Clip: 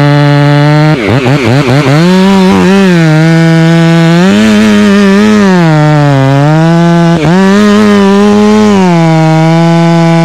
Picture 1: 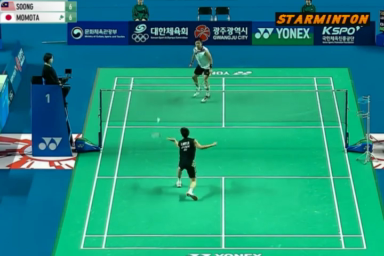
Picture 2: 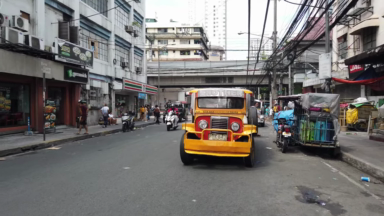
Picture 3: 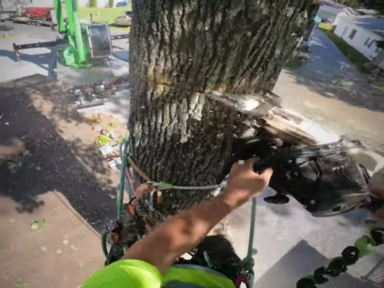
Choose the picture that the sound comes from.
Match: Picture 3